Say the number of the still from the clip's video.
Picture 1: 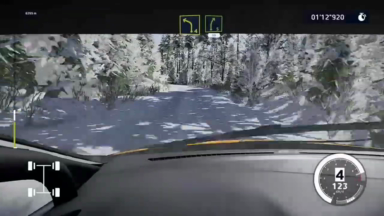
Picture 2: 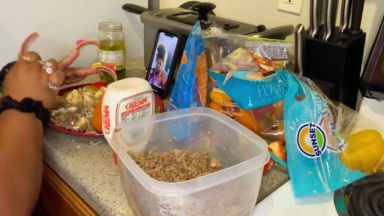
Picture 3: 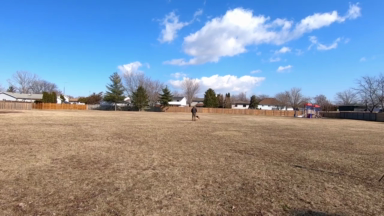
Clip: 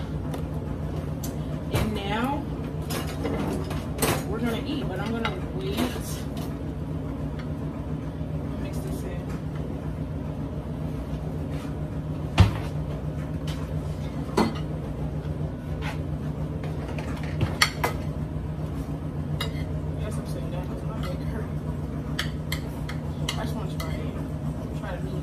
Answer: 2